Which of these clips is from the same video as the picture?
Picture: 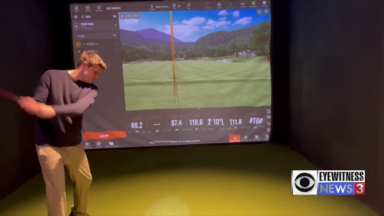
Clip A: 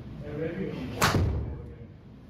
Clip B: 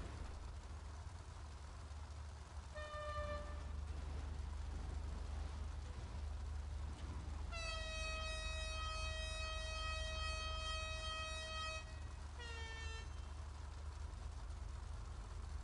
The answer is A